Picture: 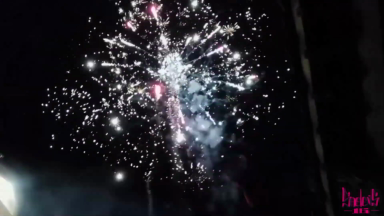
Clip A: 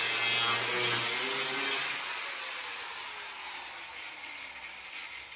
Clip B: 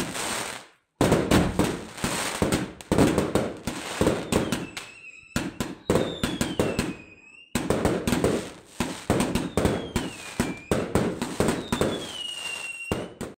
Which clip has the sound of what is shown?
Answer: B